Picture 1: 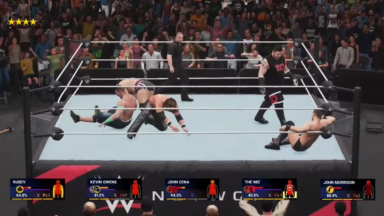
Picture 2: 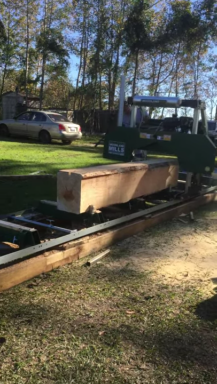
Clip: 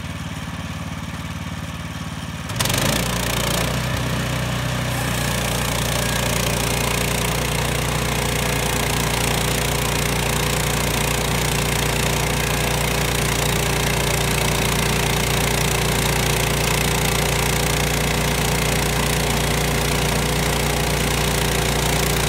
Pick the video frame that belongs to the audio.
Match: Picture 2